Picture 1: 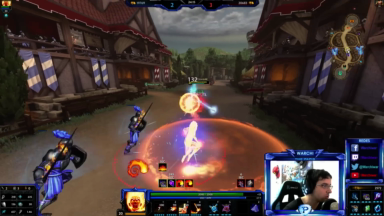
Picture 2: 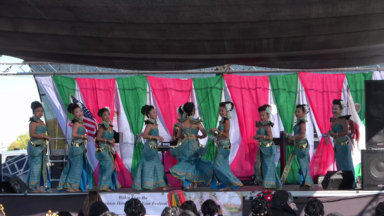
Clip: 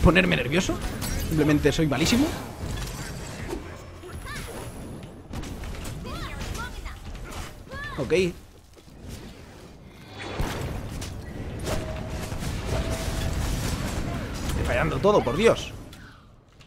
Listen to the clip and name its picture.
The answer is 1